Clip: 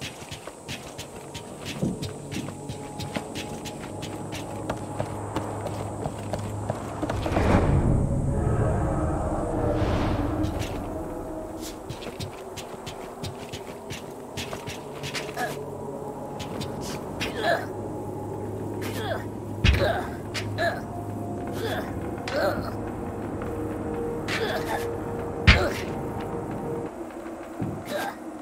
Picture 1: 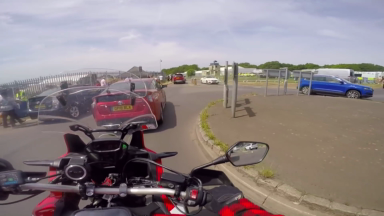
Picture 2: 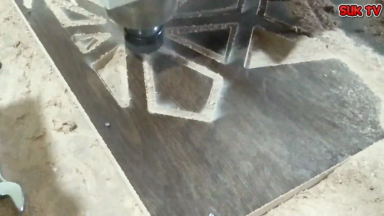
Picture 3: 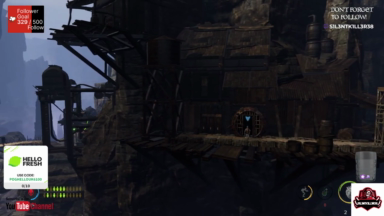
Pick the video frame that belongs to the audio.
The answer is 3